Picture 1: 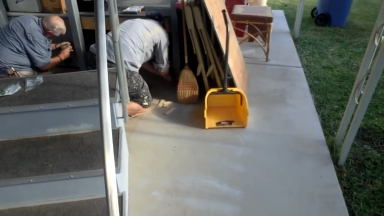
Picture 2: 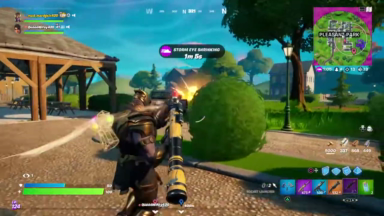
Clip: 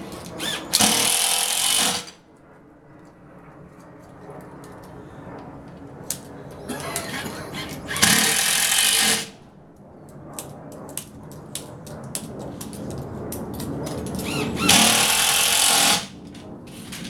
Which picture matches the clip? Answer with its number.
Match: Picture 1